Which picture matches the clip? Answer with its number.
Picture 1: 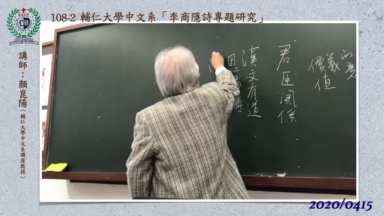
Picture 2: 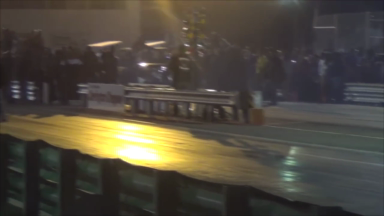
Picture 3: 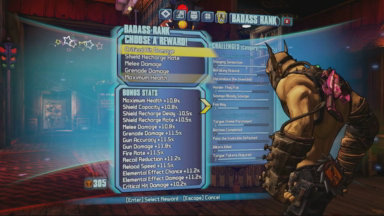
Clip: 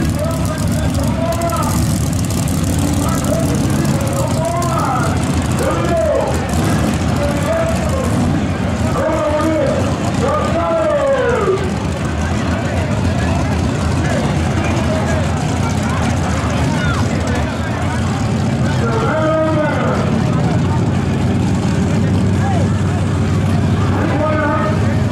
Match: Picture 2